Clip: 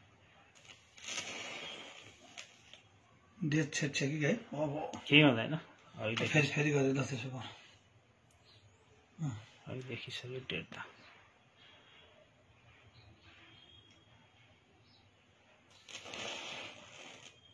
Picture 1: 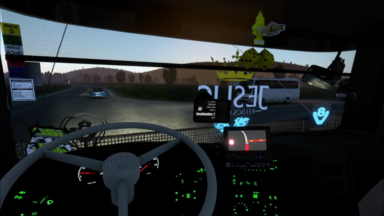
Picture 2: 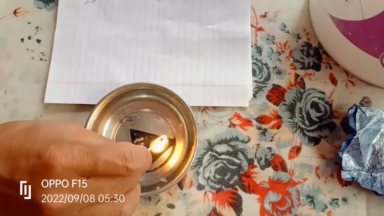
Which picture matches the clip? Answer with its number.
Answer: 2